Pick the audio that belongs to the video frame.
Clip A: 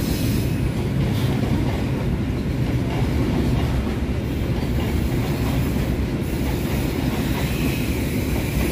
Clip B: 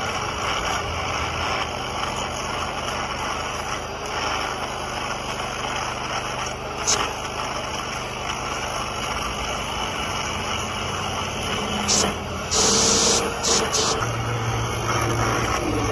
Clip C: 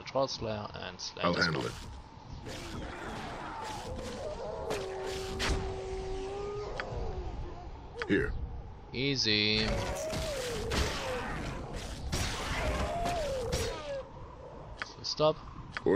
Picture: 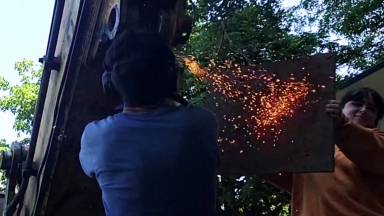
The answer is B